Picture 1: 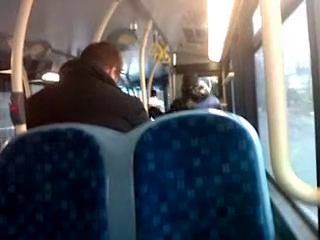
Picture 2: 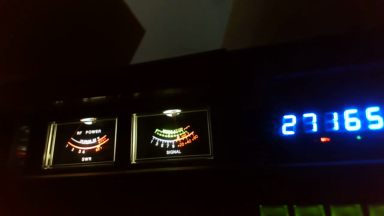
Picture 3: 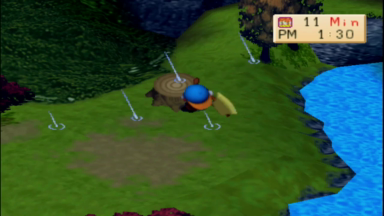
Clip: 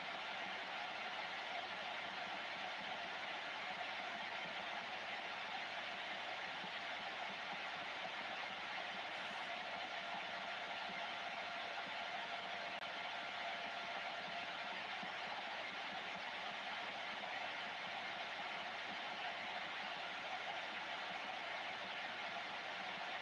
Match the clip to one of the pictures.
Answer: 2